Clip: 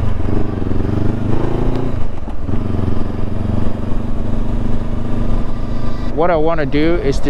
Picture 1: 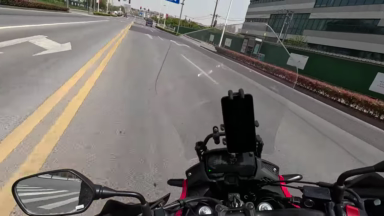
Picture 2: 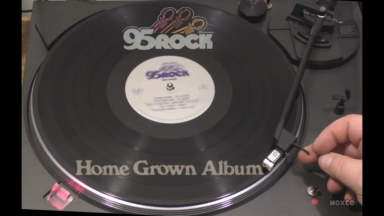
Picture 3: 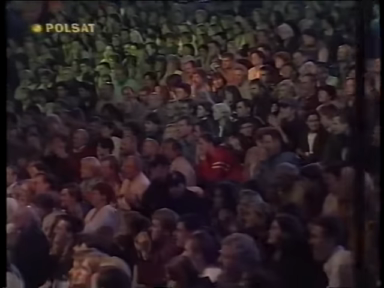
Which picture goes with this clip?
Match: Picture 1